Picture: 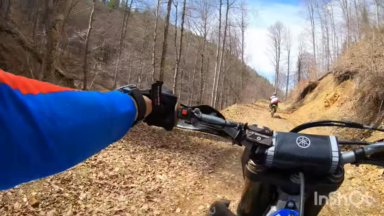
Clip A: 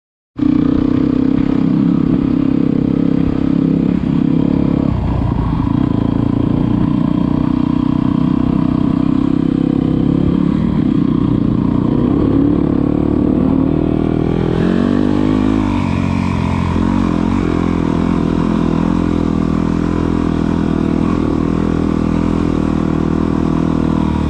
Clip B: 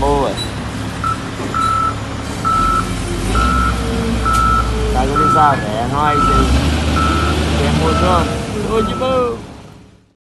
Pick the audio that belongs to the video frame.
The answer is A